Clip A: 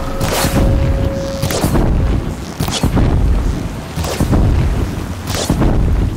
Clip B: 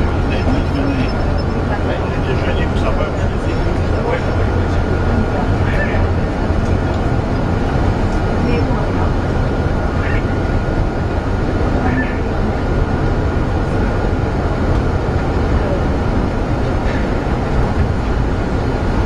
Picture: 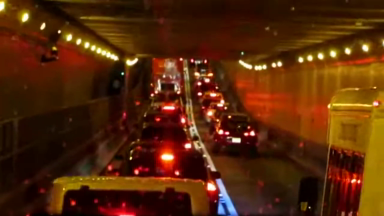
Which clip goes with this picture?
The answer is B